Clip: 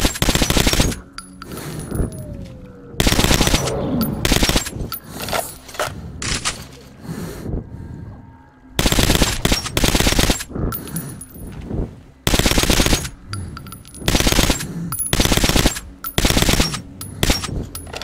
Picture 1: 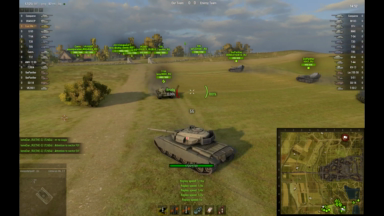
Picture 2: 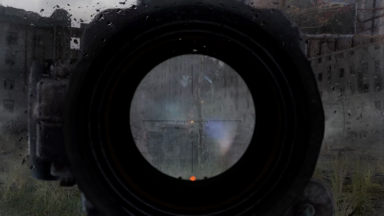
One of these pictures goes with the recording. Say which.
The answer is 2